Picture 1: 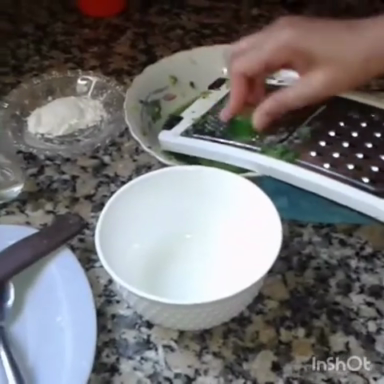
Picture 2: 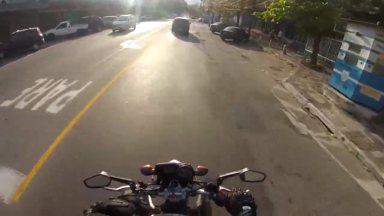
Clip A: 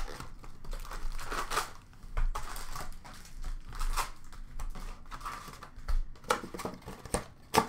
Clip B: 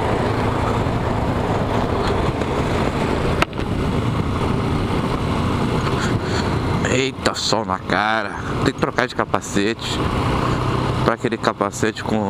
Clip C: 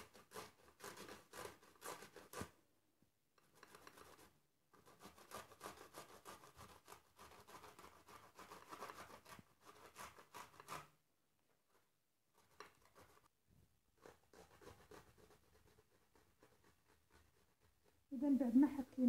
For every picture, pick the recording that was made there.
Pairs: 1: C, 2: B